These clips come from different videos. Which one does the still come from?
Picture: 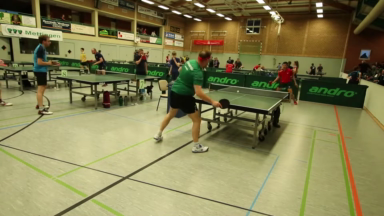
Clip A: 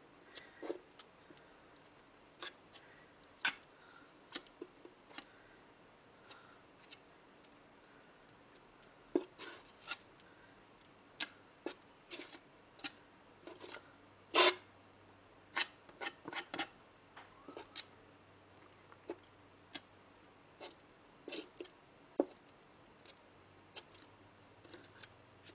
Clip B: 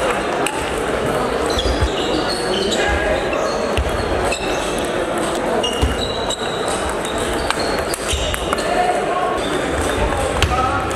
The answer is B